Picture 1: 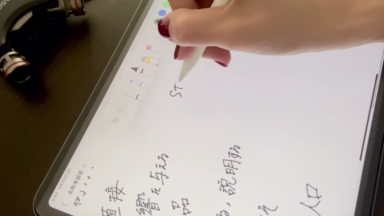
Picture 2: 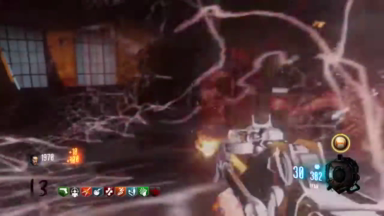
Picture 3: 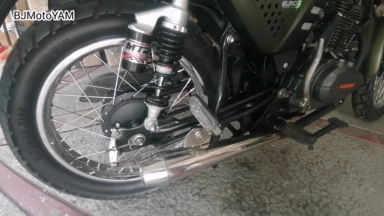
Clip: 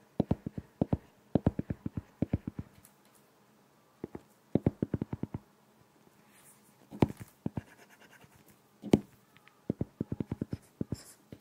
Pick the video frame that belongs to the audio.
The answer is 1